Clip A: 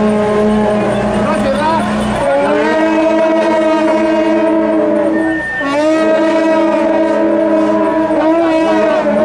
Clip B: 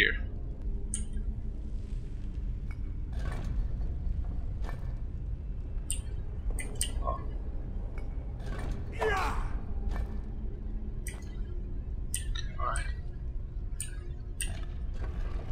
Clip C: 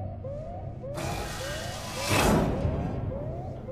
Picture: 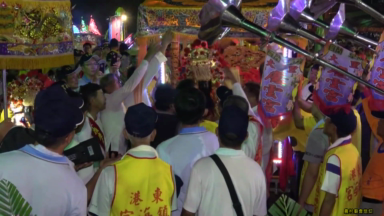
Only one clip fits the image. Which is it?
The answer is A